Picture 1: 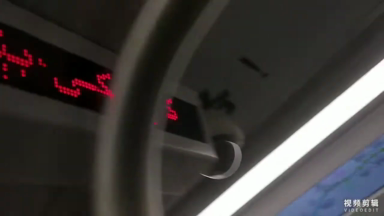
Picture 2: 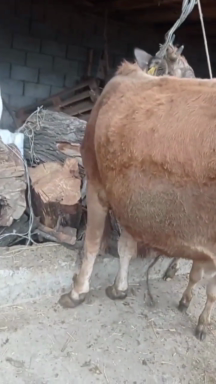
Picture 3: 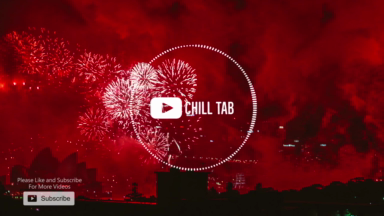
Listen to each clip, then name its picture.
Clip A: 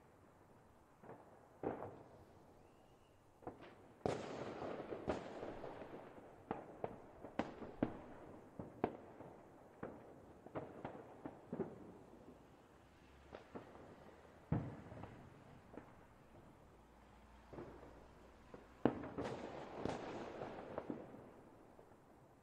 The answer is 3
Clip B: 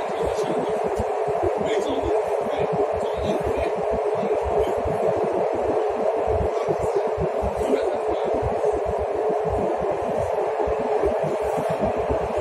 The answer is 1